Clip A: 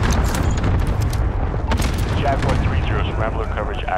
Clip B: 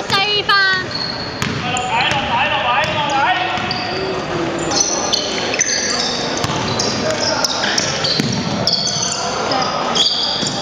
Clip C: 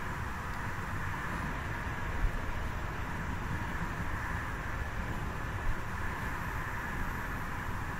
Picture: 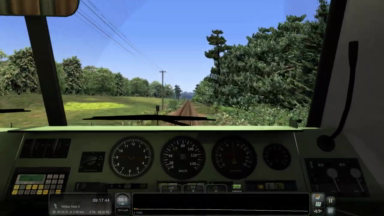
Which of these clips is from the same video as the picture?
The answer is C